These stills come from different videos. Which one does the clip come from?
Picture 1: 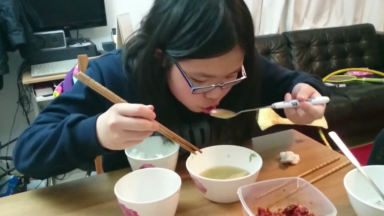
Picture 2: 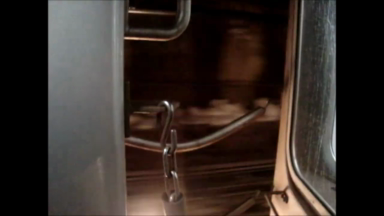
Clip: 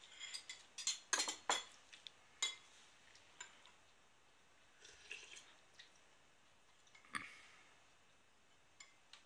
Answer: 1